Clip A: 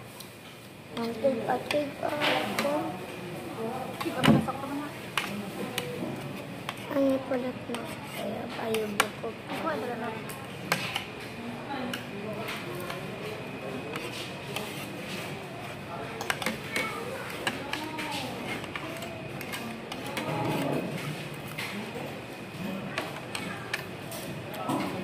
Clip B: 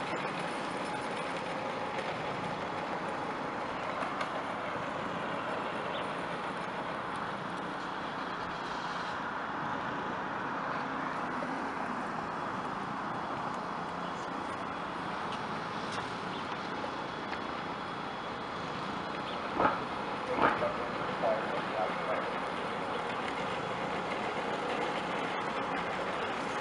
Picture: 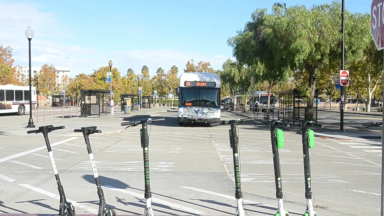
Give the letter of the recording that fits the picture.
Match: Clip B